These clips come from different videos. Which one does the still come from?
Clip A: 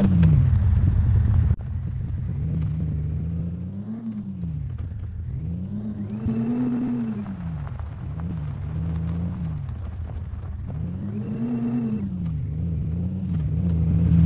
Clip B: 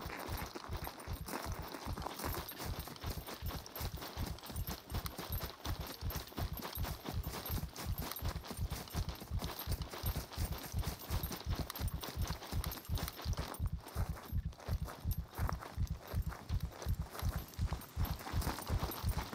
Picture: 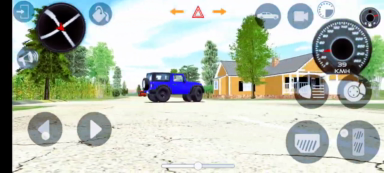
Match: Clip A